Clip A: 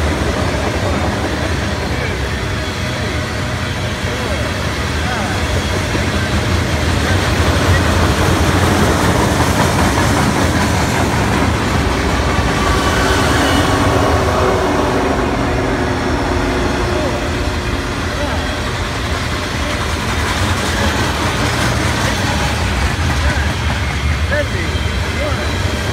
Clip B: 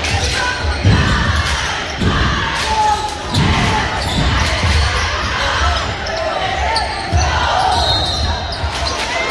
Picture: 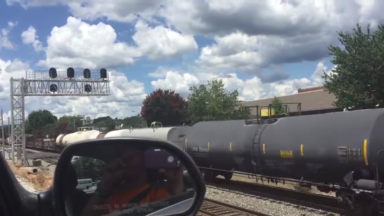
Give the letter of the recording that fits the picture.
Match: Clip A